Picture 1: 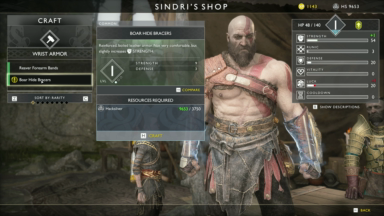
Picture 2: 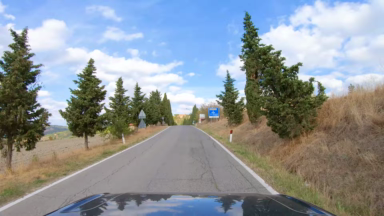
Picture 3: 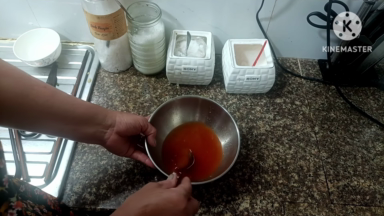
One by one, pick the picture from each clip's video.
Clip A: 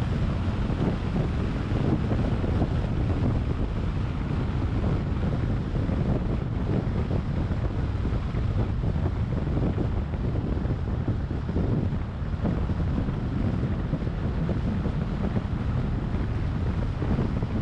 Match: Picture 2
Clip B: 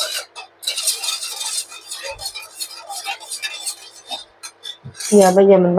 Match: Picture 3